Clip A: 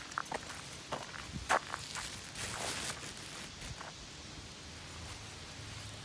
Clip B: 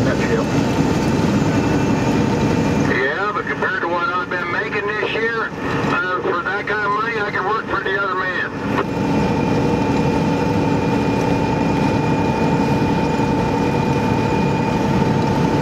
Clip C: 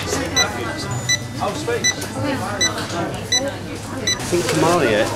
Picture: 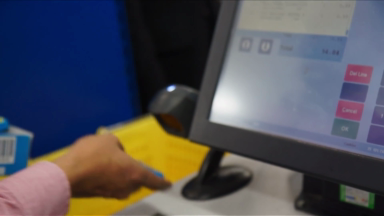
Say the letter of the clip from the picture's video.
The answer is C